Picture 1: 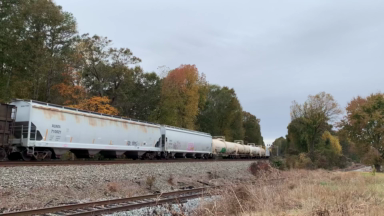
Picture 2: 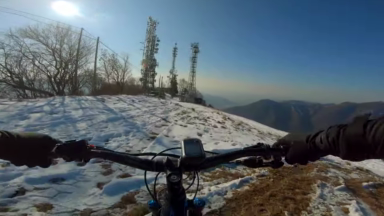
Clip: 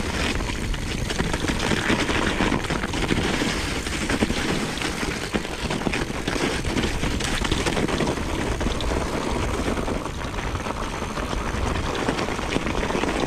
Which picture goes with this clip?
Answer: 2